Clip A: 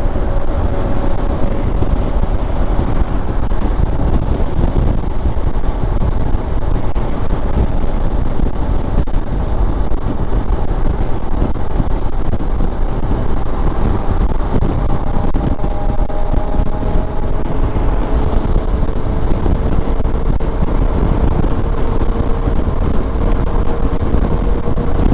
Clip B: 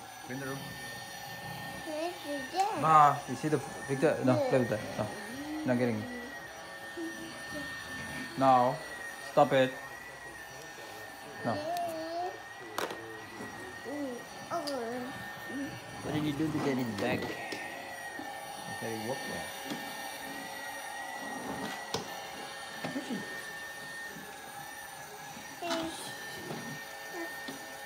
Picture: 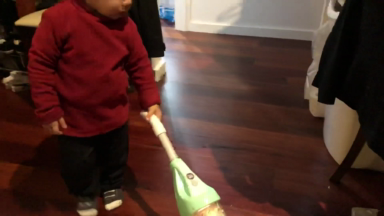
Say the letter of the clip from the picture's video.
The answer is B